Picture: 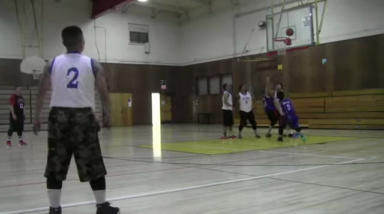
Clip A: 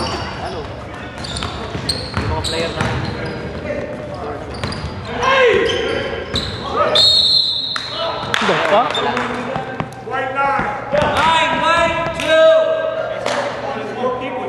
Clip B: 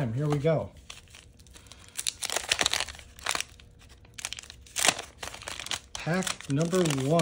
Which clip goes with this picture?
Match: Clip A